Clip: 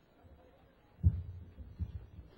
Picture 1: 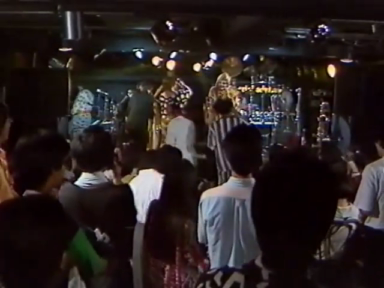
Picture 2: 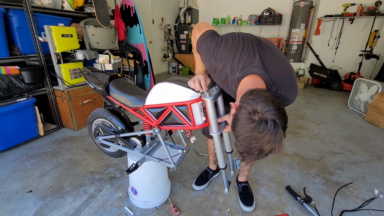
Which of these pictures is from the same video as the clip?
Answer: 1